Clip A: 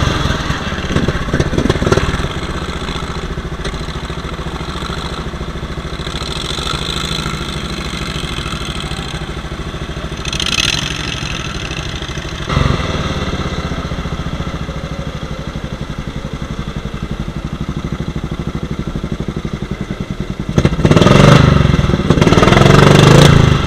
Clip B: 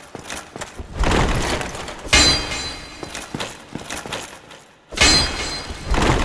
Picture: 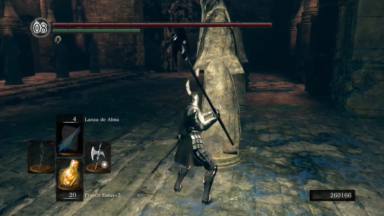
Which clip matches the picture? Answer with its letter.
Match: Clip B